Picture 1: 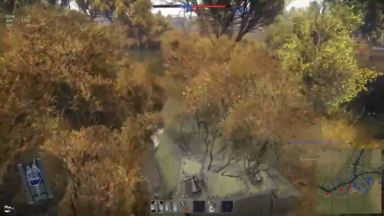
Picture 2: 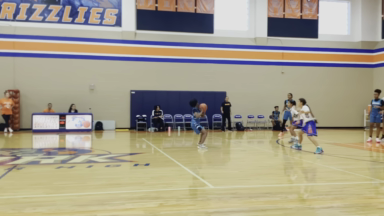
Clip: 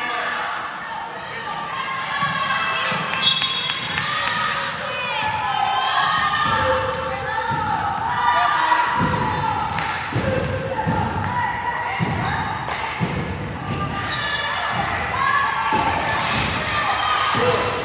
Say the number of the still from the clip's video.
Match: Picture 2